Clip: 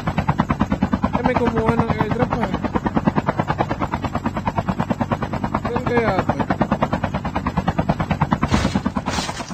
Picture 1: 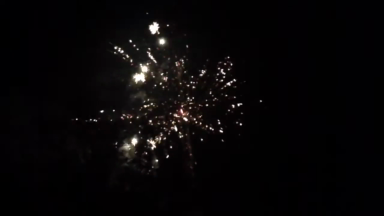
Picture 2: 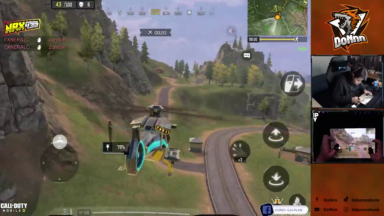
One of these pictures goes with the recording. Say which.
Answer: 2